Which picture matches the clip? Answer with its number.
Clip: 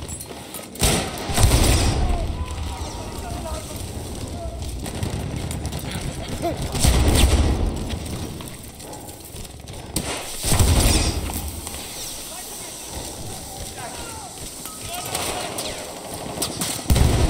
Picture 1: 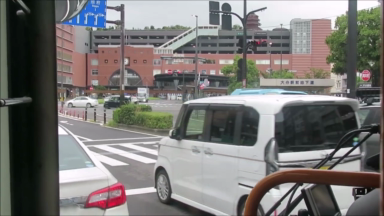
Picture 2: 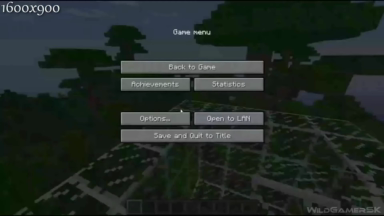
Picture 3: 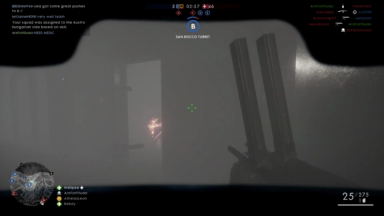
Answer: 3